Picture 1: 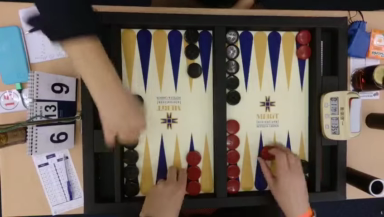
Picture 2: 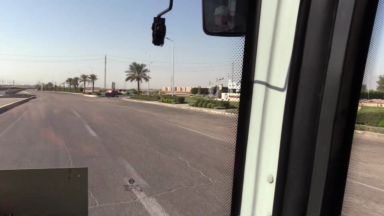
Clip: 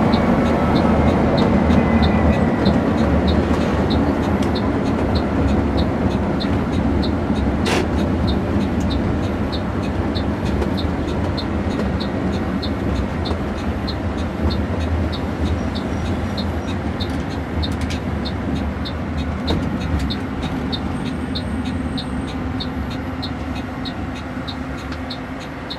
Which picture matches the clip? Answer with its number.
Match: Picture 2